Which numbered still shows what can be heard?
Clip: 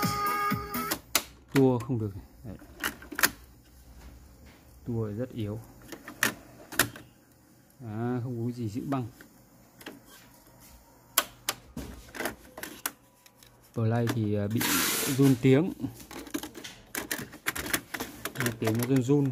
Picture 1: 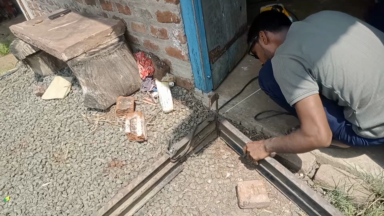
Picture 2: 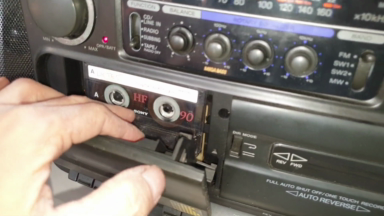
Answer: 2